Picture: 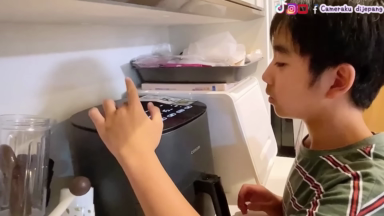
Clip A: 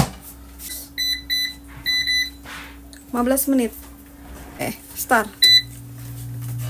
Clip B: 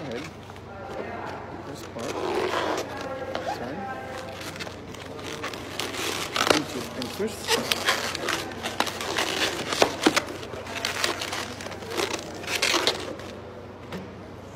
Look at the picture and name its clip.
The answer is A